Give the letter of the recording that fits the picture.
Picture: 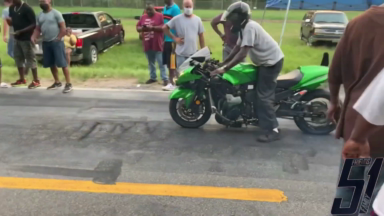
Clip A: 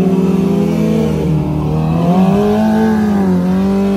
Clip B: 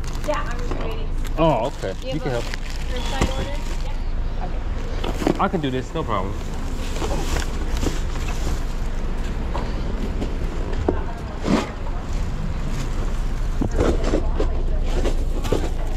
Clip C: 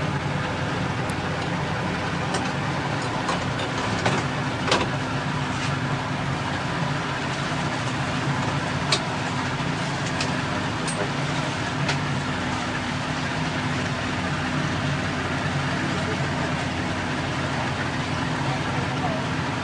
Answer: A